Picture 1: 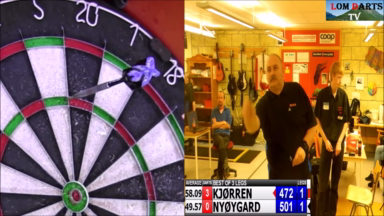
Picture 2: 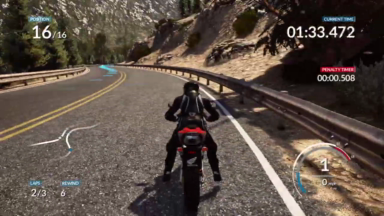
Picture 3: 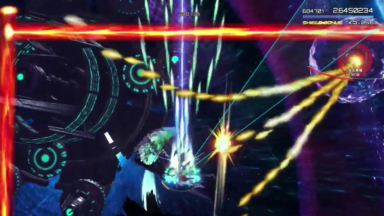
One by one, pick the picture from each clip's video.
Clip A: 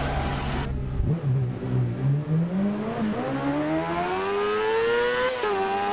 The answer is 2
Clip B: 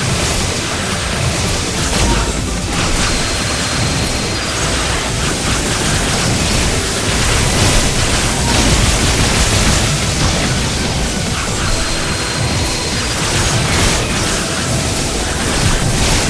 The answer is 3